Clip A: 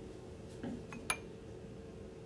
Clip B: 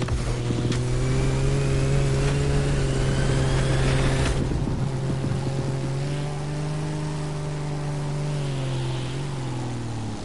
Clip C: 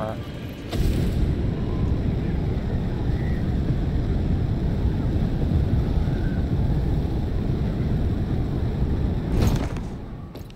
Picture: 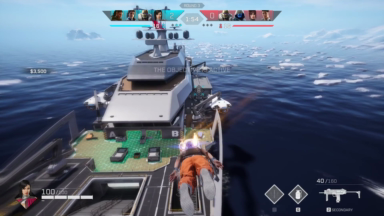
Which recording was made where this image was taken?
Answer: C